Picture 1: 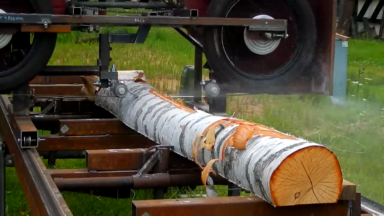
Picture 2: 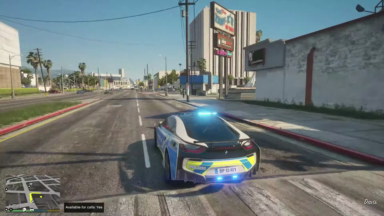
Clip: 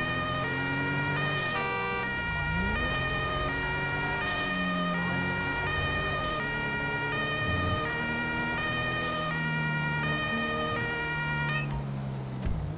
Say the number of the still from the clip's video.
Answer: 2